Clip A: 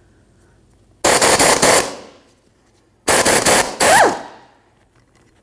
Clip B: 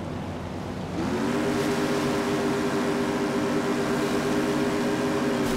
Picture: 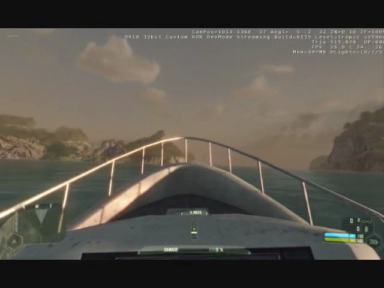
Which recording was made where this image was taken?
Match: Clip B